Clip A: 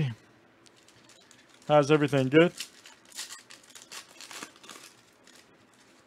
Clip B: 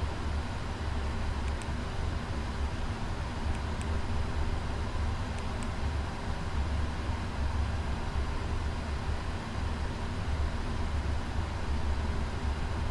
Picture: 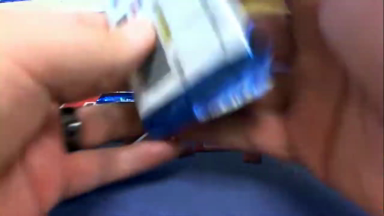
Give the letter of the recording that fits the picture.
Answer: A